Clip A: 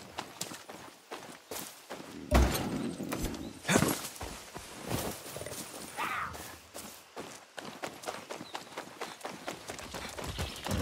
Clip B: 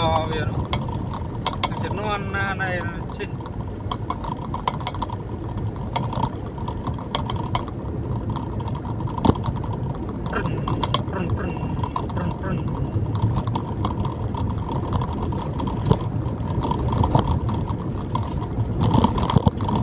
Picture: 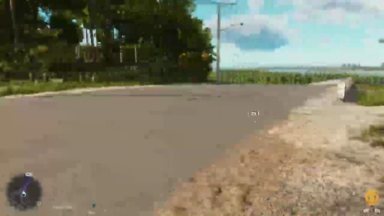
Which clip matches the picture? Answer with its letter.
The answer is A